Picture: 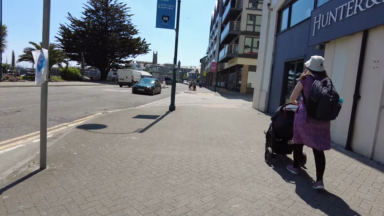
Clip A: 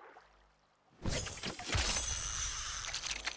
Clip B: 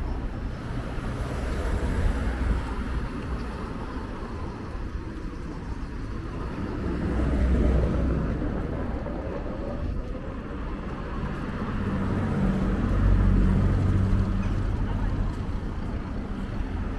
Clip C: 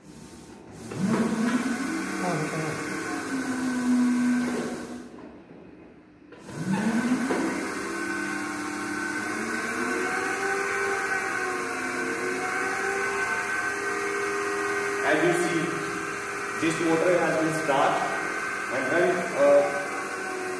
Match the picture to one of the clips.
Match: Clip B